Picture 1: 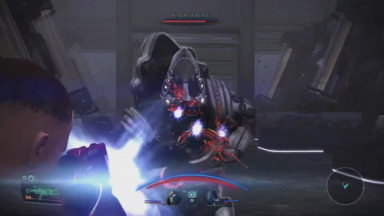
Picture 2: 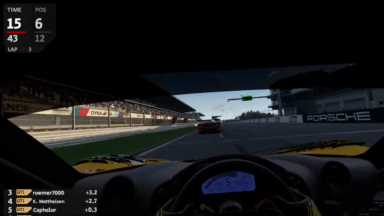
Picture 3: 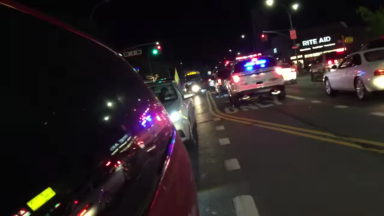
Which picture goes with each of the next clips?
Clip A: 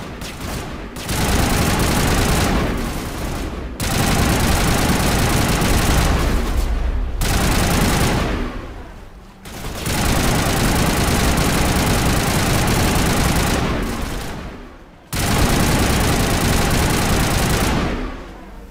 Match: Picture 1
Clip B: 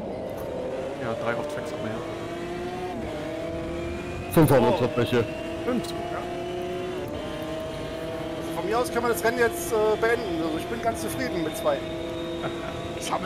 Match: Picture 2